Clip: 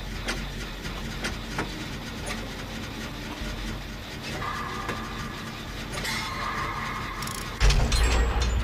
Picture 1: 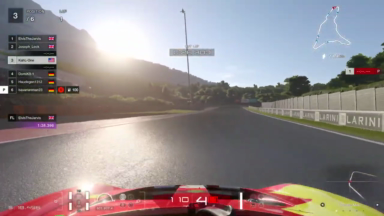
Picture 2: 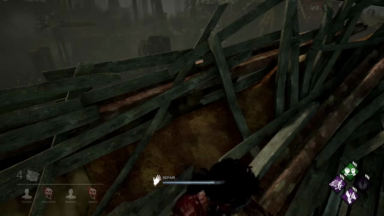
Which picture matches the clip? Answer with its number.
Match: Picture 2